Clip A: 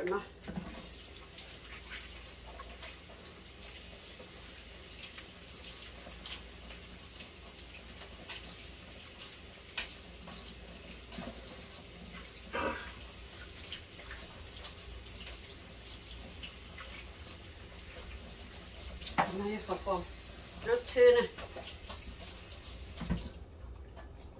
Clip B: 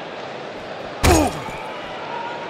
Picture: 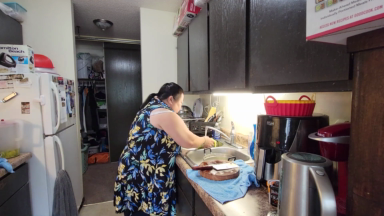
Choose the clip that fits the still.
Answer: A